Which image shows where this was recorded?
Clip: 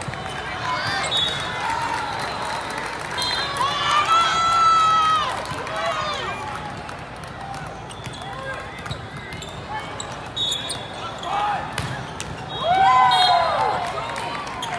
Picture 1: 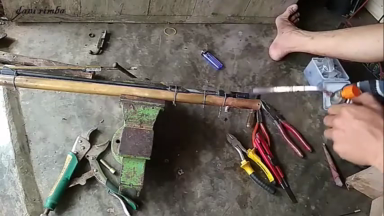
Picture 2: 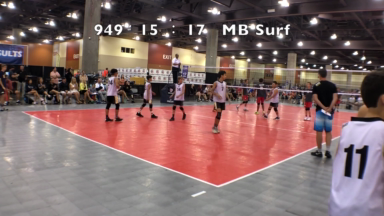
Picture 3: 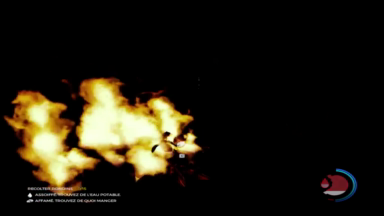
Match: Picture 2